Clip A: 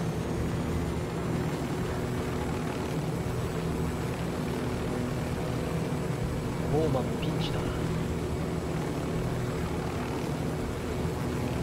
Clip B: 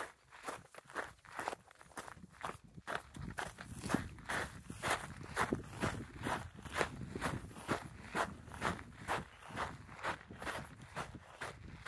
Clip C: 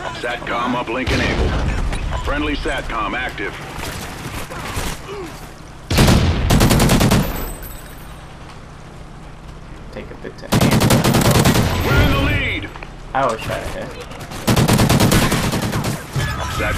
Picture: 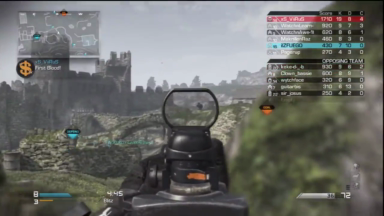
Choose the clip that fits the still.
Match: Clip C